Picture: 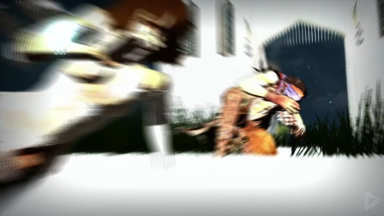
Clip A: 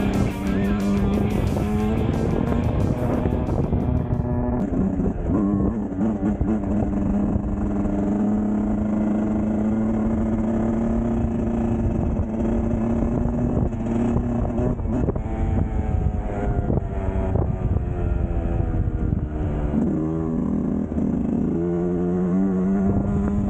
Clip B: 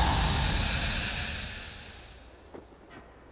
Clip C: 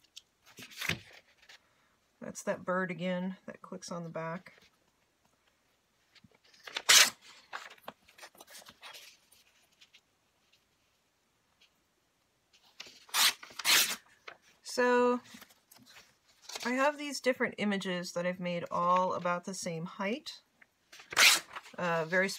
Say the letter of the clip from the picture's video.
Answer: B